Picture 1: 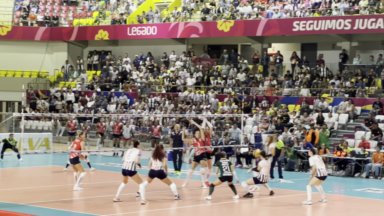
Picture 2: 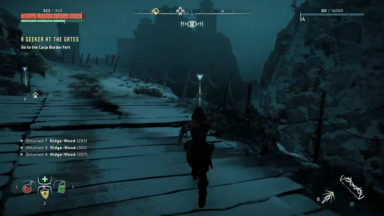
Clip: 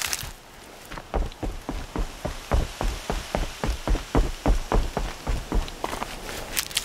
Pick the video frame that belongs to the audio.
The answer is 2